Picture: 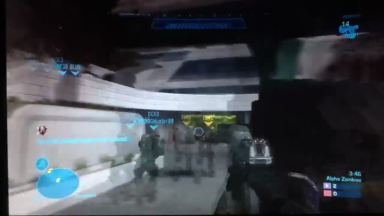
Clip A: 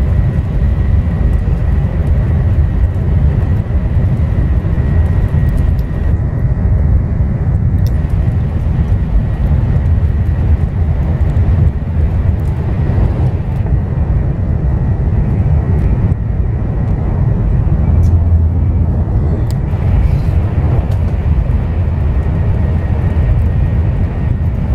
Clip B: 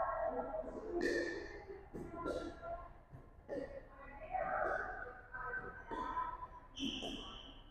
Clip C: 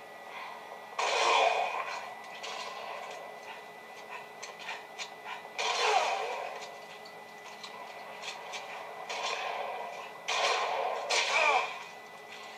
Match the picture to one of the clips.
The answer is C